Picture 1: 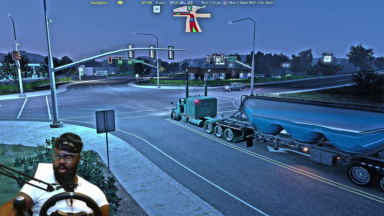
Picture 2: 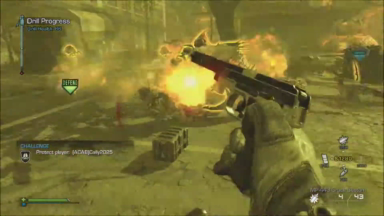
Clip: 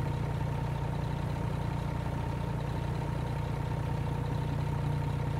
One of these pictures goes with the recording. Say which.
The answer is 1